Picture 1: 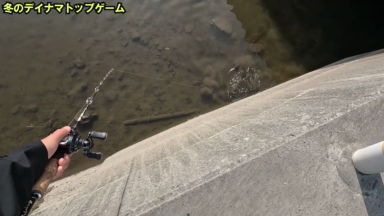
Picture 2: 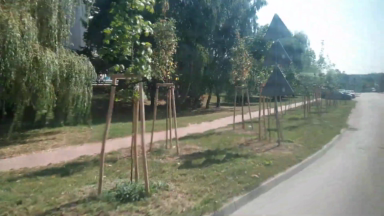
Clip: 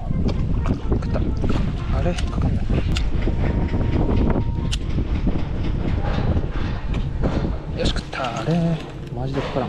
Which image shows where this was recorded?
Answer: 1